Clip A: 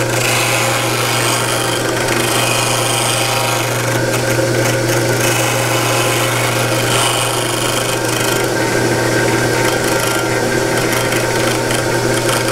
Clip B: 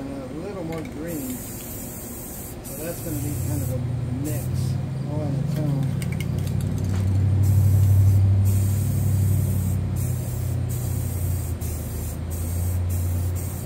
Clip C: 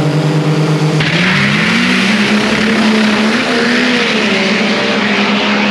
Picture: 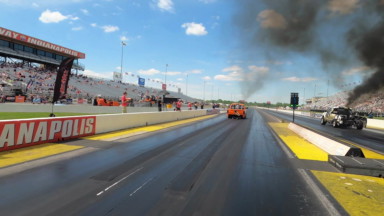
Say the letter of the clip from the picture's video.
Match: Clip C